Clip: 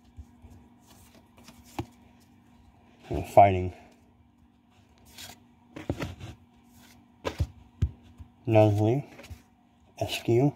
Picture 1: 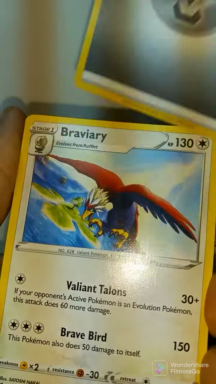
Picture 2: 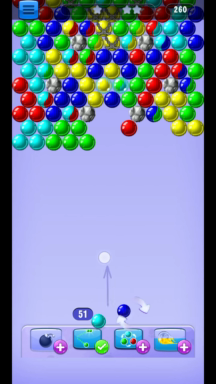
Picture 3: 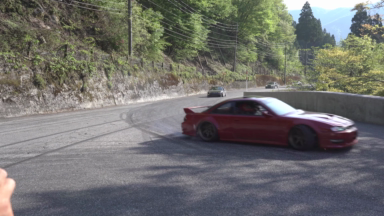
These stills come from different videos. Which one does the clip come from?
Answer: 1